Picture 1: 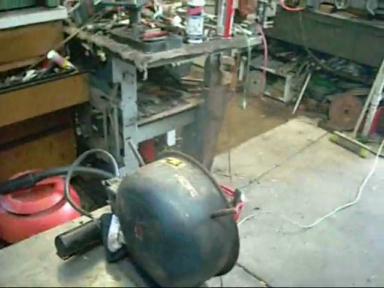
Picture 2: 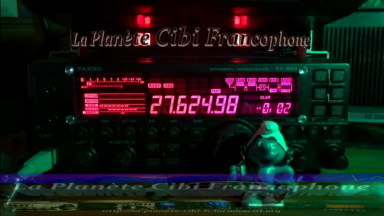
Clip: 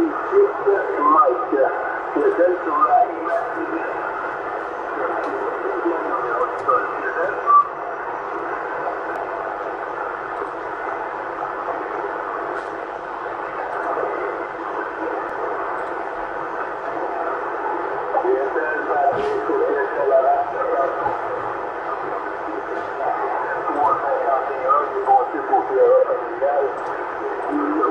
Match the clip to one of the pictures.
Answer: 2